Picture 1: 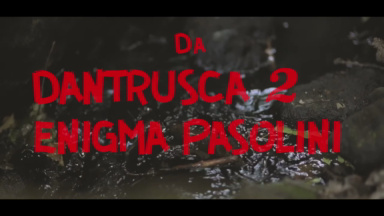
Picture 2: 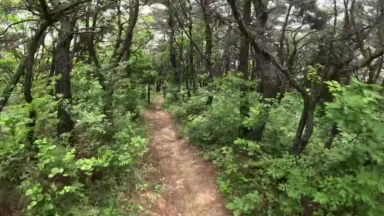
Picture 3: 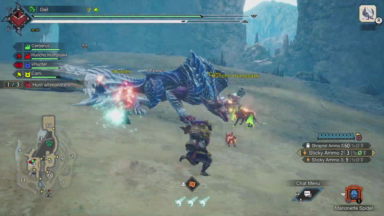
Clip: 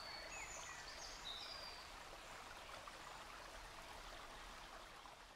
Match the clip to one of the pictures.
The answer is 1